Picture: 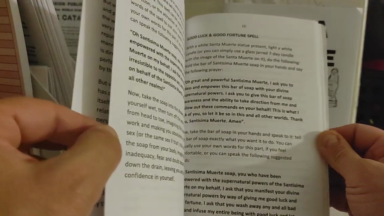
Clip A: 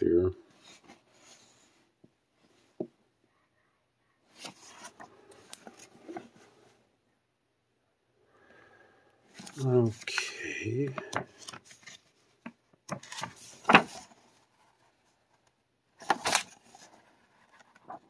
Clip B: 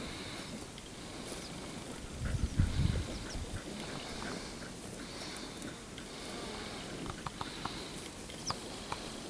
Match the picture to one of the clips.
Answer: A